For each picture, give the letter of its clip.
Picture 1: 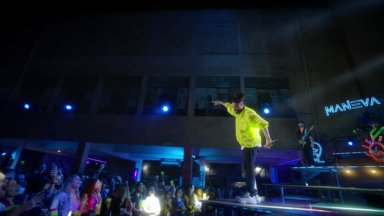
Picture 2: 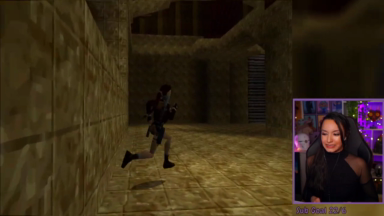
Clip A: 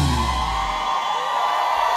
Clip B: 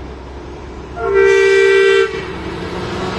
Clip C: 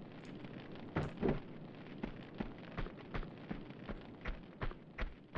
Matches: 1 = A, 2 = C